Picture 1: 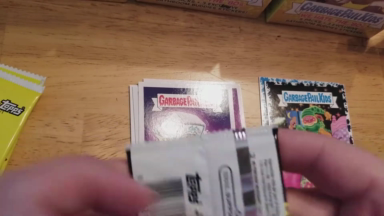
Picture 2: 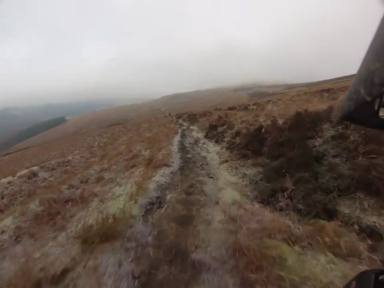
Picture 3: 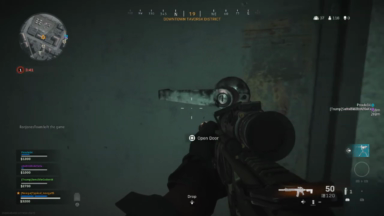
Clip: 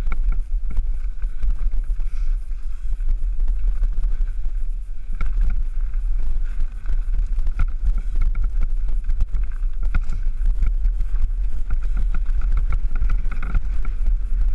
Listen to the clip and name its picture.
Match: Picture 2